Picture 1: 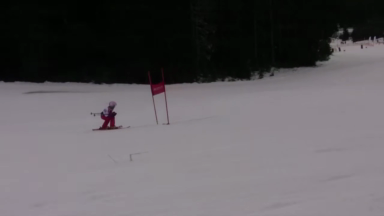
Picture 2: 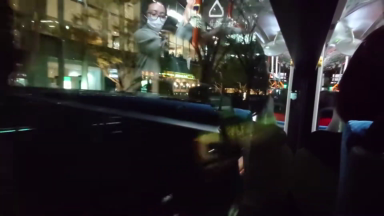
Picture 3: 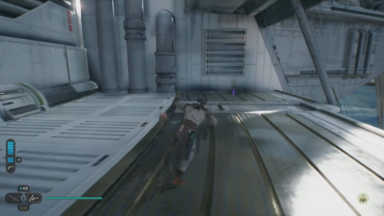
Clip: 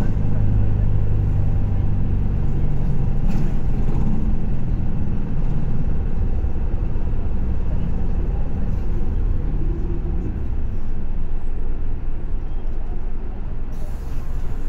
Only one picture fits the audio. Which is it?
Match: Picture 2